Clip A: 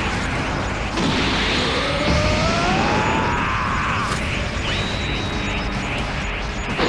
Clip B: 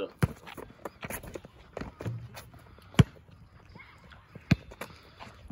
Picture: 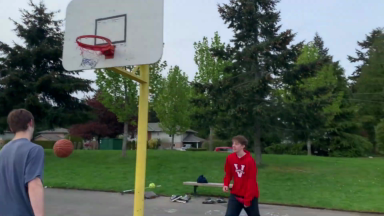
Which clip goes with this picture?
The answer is B